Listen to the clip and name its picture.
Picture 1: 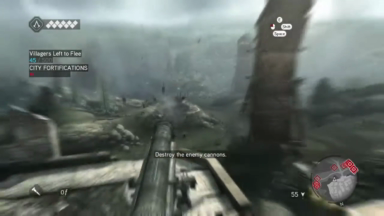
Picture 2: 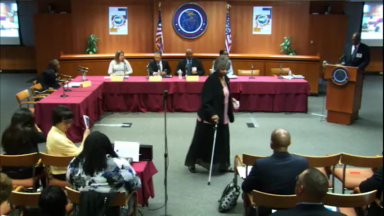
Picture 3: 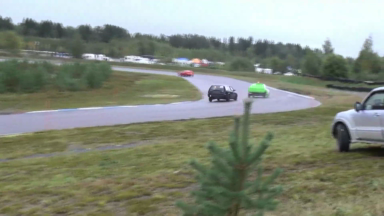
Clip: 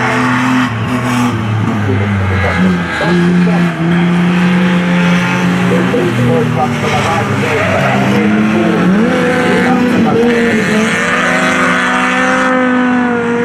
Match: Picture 3